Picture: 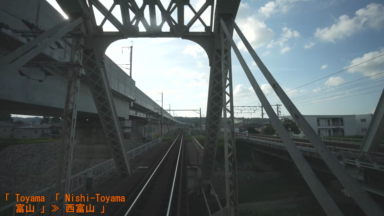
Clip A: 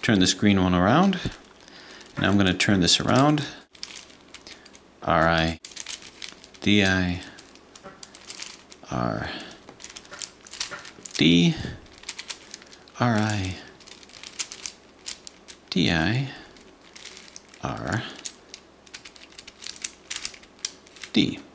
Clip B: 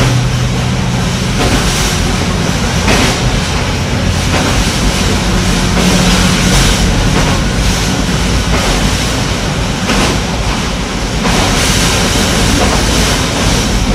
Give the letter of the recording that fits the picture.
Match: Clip B